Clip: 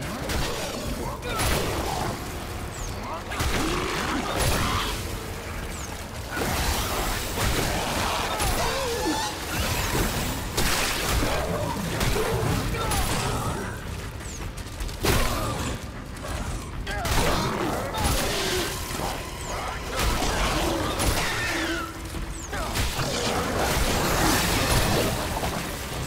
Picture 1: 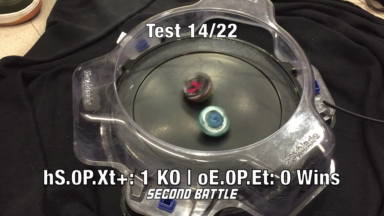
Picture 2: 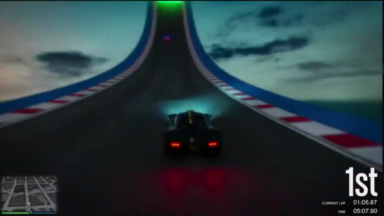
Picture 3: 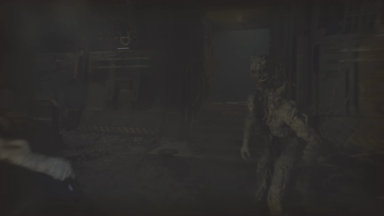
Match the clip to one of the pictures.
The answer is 3